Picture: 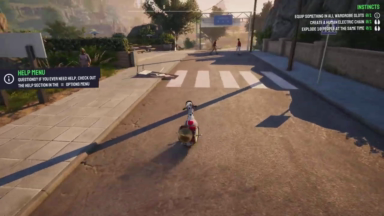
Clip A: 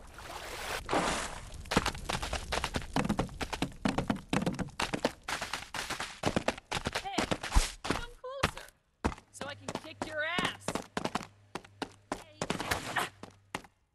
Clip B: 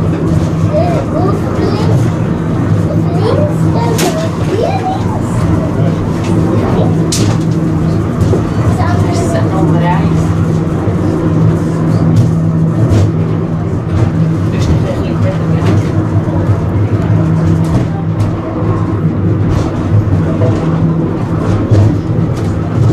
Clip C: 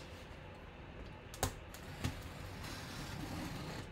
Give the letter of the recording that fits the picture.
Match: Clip A